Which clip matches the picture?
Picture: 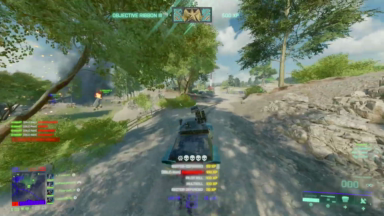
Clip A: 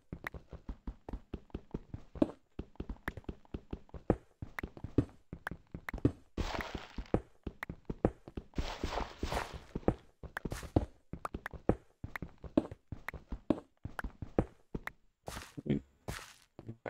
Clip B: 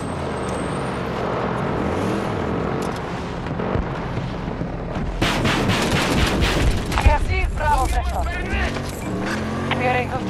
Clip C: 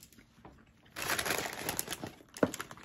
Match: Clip B